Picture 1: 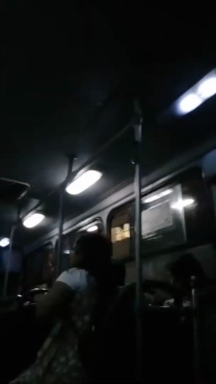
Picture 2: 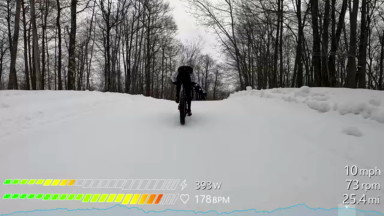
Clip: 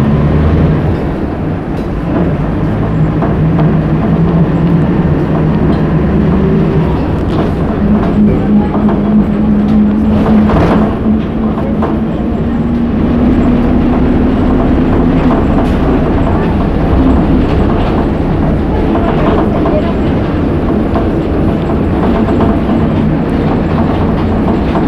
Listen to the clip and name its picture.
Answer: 1